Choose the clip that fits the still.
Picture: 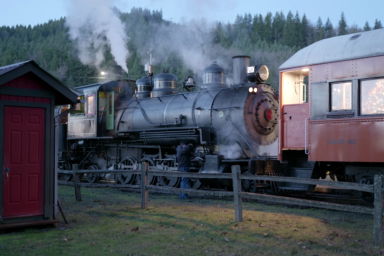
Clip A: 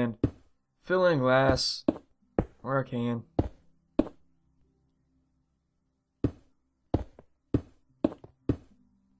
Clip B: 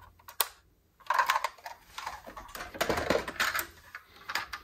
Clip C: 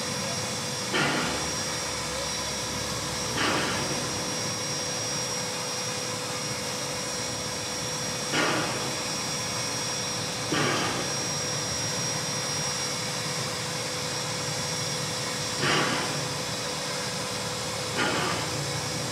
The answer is C